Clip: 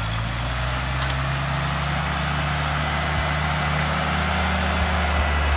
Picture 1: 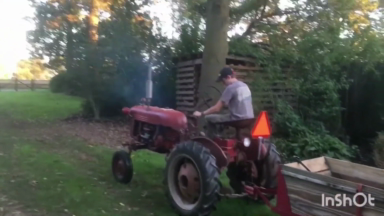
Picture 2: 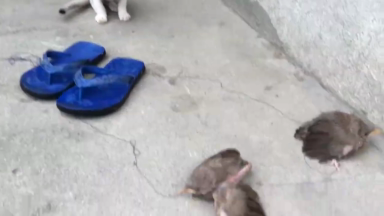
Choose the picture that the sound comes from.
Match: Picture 1